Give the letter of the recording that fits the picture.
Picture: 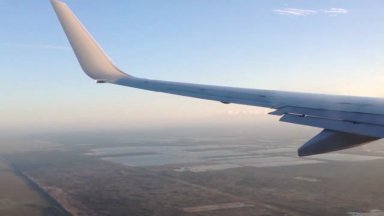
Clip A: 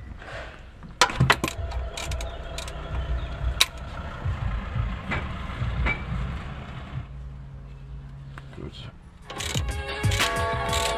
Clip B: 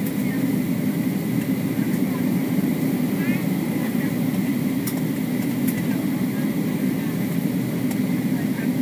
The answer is B